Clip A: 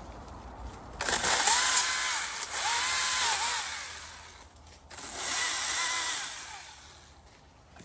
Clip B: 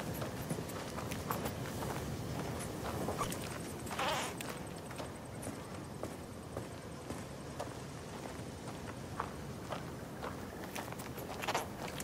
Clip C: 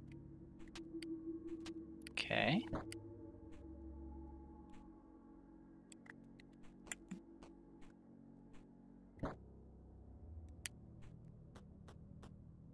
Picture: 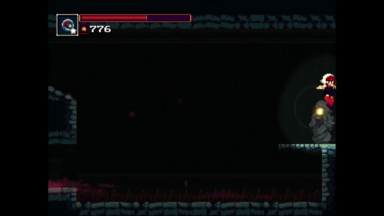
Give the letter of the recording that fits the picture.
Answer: C